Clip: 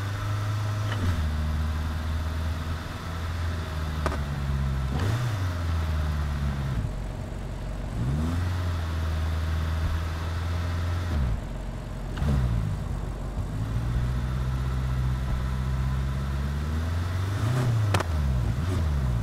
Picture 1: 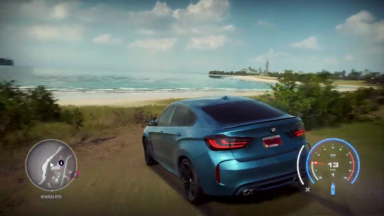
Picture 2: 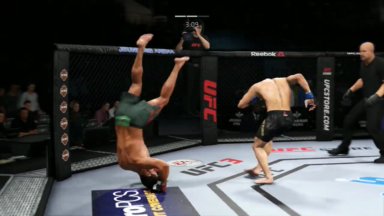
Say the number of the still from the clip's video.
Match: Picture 1